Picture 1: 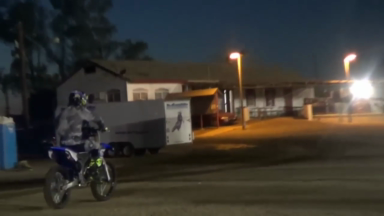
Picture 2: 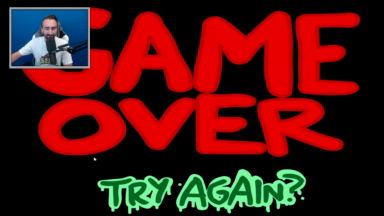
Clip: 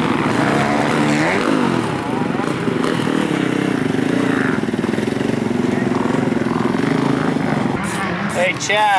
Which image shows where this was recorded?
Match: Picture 1